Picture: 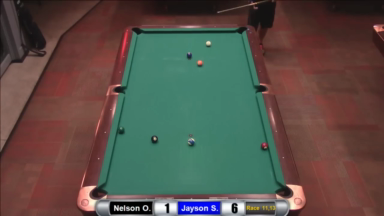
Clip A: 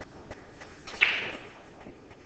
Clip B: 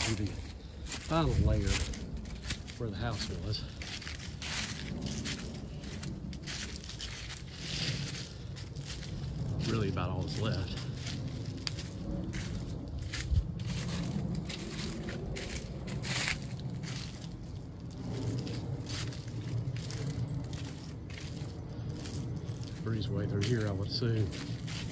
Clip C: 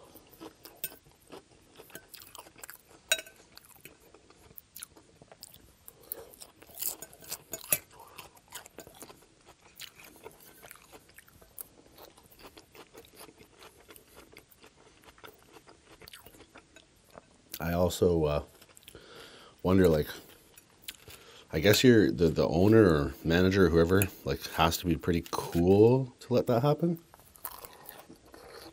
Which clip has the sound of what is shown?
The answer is A